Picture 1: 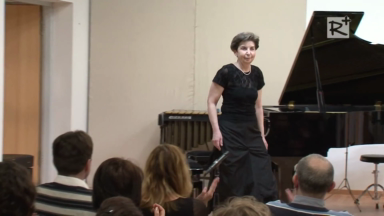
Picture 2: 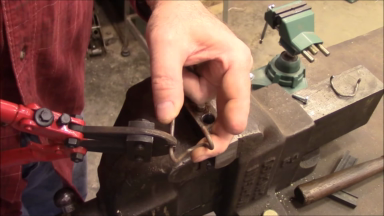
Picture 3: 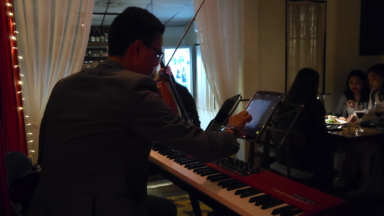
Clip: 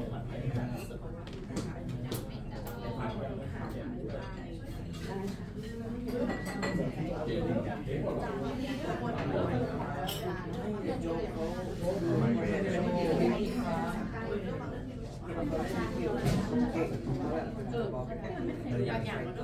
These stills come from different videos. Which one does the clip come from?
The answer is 3